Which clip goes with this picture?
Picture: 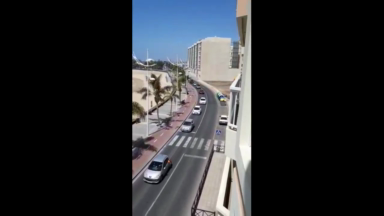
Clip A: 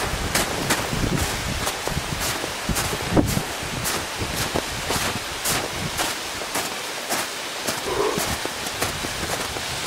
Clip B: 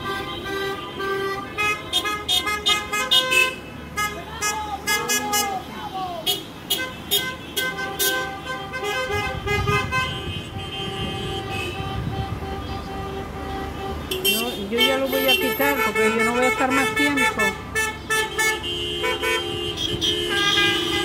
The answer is B